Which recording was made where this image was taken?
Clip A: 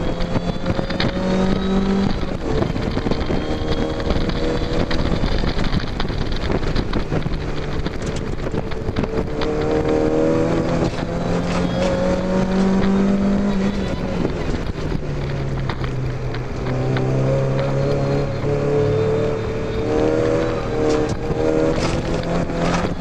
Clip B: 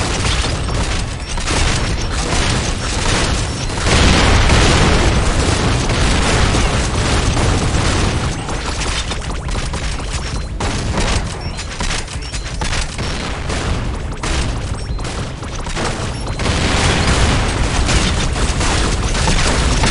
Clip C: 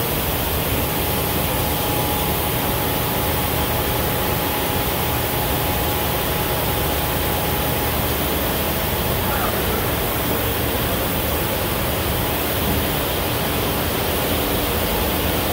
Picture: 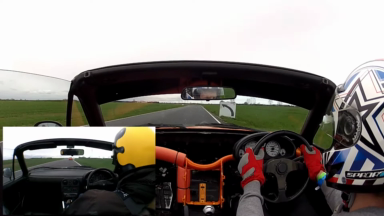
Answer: A